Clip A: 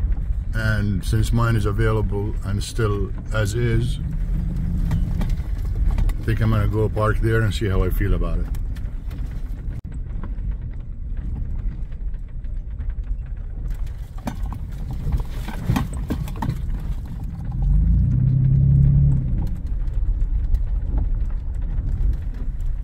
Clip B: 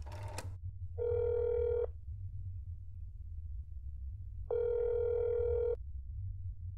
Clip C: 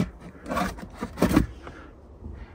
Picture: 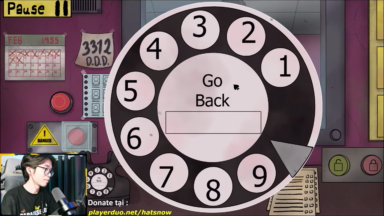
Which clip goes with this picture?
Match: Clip B